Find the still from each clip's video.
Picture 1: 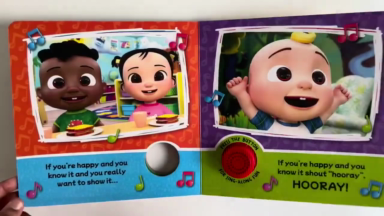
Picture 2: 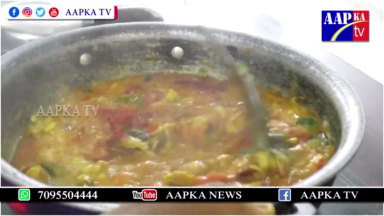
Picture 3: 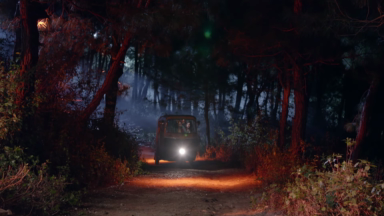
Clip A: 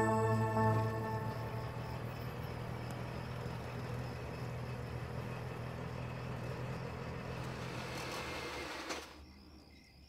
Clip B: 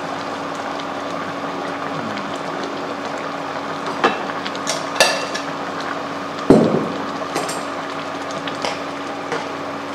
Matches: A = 3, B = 2